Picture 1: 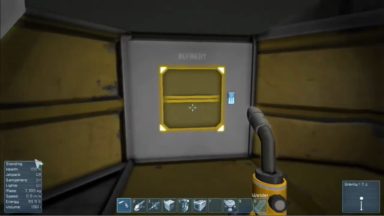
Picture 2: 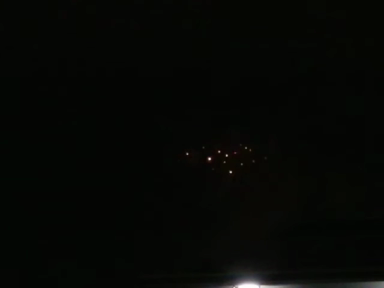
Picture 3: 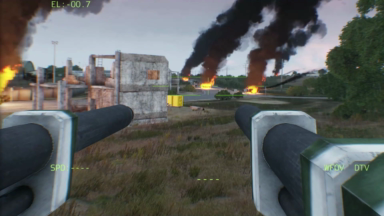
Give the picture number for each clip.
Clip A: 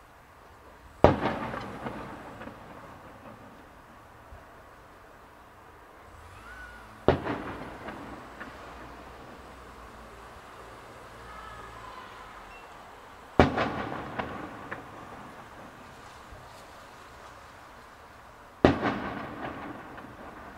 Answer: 2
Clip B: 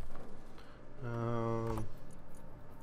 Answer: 1